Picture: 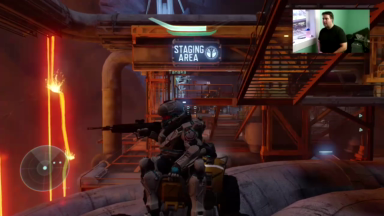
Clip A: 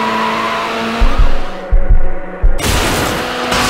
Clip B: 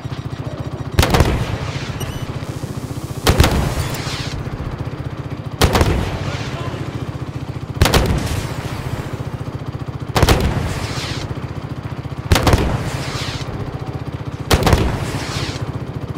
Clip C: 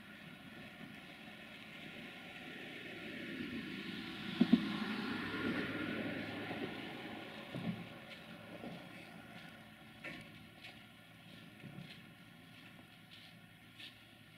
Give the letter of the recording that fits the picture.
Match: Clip B